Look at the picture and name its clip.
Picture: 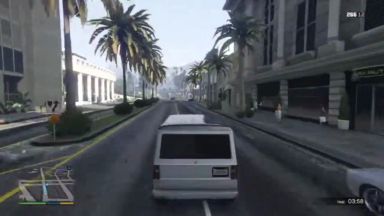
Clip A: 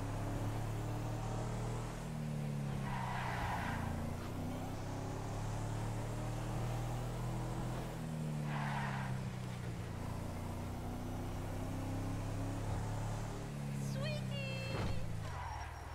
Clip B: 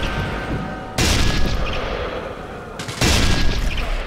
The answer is A